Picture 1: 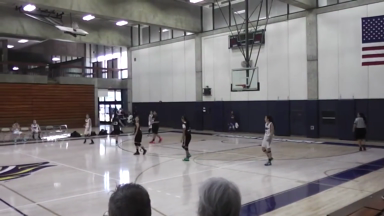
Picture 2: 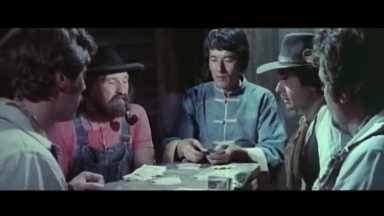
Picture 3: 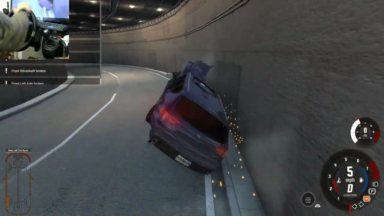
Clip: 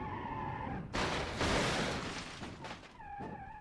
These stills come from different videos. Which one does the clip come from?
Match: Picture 3